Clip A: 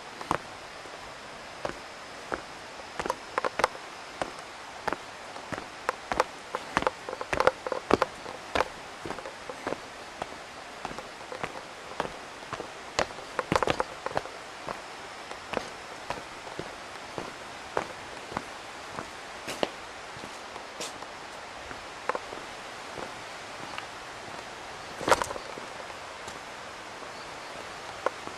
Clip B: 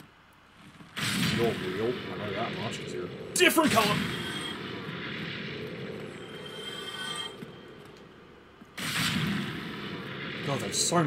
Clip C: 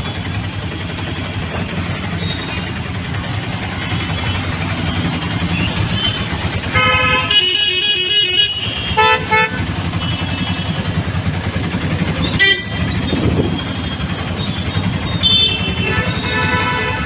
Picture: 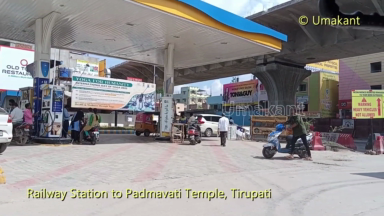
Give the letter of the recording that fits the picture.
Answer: C